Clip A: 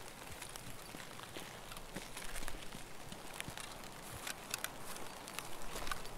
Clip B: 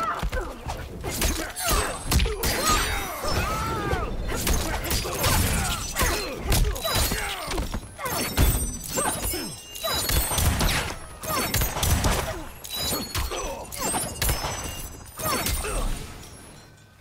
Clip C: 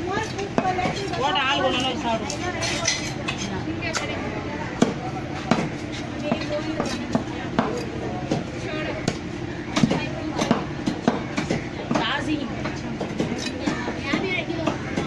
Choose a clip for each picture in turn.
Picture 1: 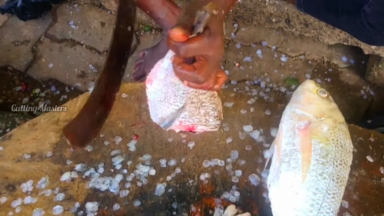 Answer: C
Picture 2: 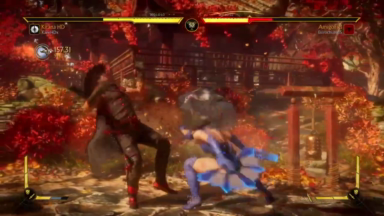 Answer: B